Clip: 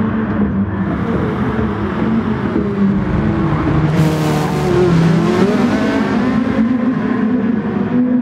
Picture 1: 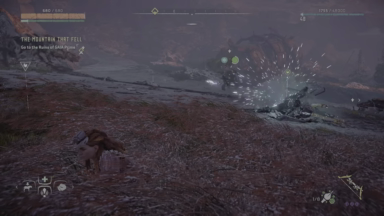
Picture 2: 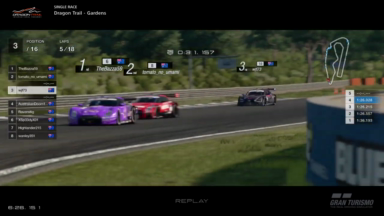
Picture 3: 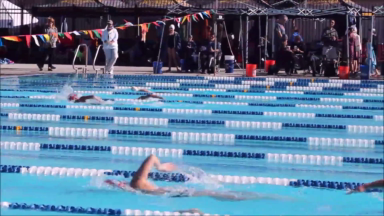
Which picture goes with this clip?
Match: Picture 2